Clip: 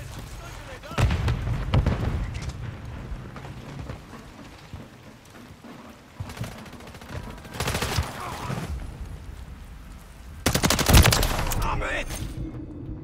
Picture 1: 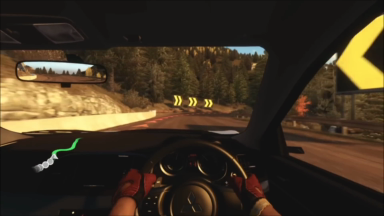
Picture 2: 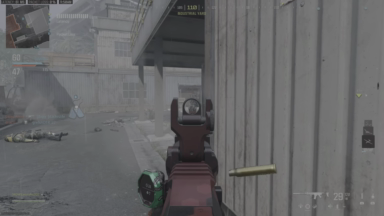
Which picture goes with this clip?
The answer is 2